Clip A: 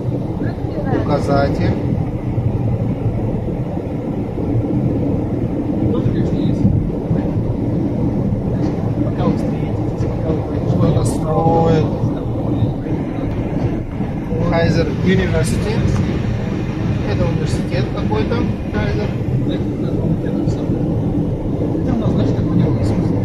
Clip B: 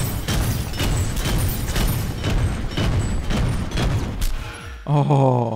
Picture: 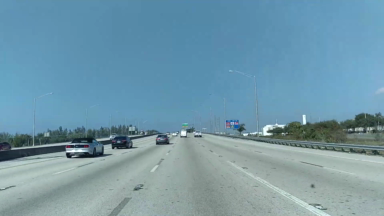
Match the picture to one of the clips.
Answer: A